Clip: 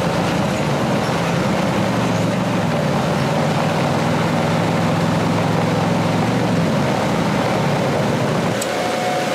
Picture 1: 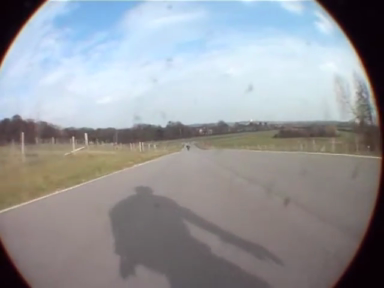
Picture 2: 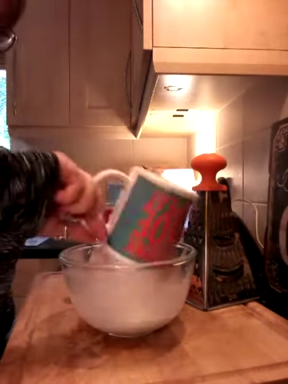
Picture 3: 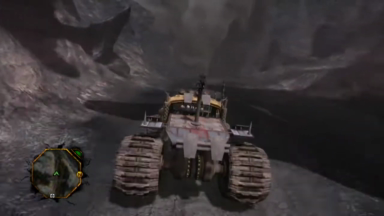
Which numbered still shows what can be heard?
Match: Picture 3